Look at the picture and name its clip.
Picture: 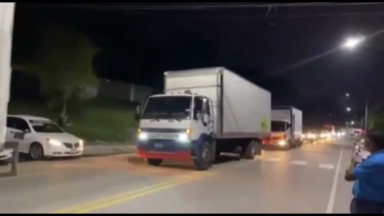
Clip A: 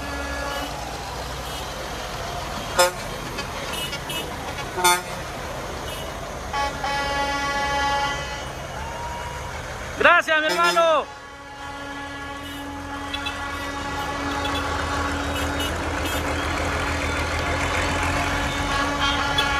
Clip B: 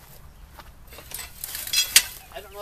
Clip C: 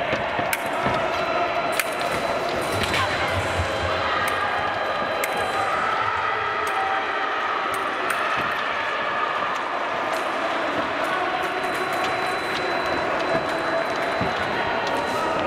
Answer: A